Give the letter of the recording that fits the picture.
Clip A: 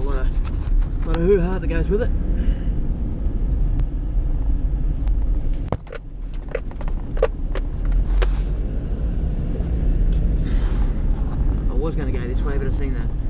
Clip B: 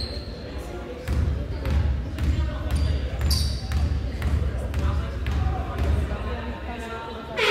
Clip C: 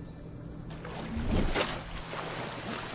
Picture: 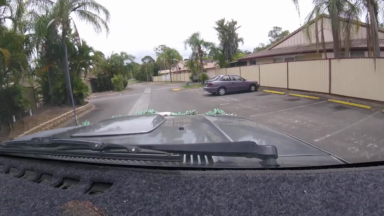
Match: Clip A